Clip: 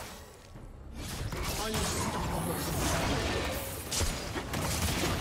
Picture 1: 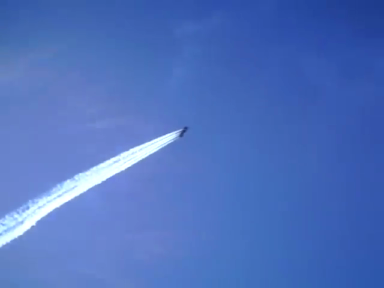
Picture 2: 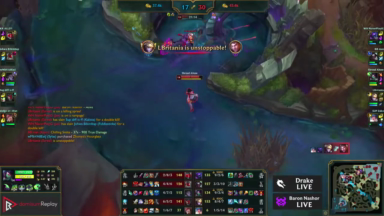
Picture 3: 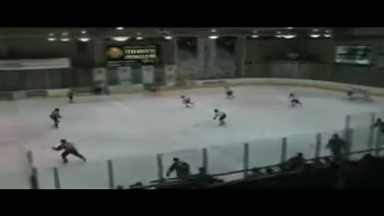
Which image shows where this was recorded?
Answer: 2